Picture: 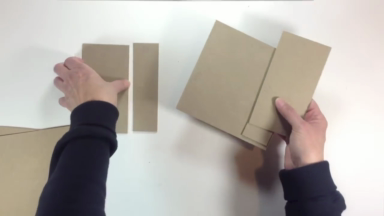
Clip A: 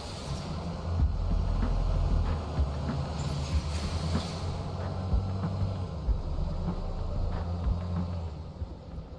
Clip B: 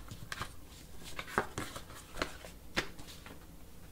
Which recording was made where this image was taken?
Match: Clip B